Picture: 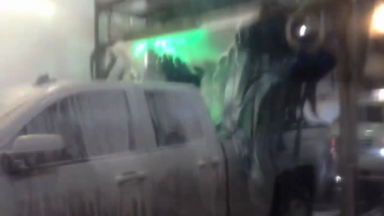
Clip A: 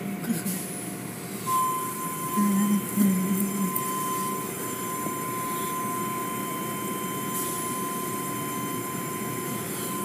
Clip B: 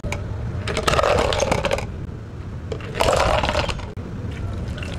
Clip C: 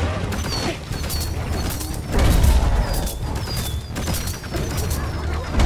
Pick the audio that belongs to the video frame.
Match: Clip A